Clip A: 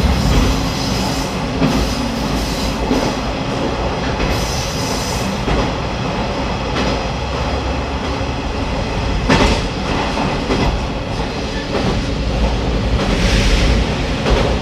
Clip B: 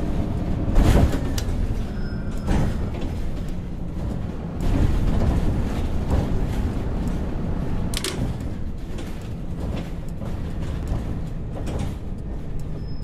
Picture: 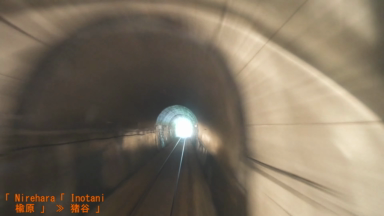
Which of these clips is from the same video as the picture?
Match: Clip A